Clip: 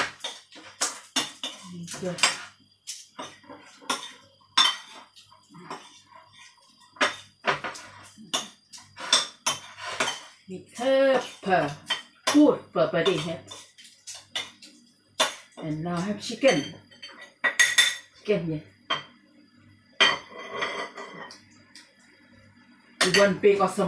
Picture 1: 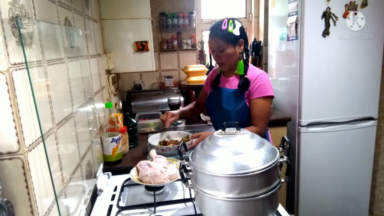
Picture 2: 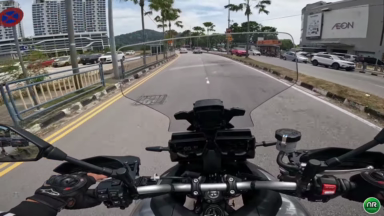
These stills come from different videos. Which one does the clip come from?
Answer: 1